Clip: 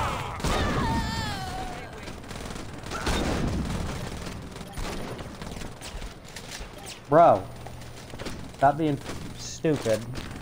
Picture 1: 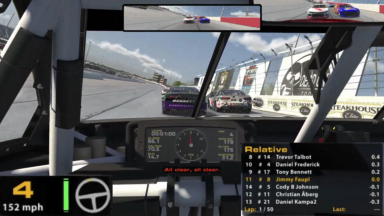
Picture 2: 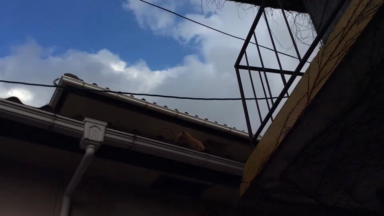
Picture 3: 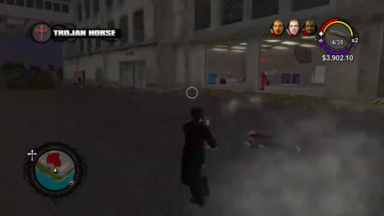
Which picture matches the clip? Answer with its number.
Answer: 3